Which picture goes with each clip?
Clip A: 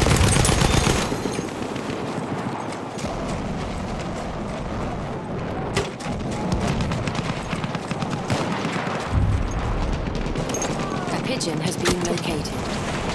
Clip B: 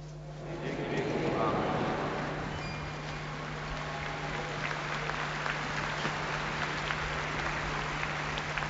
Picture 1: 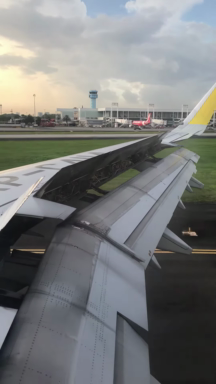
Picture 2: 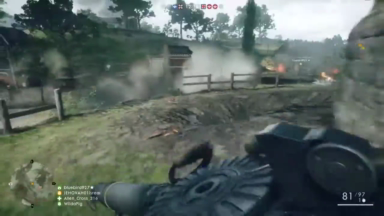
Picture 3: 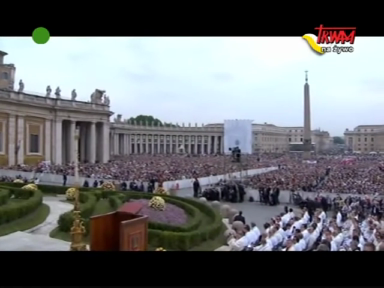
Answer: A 2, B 3